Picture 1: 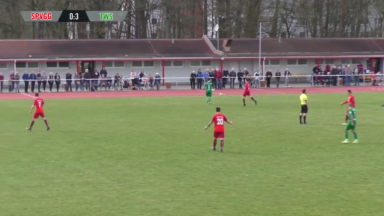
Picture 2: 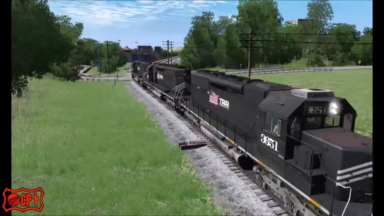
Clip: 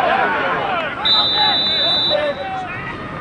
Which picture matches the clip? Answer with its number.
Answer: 1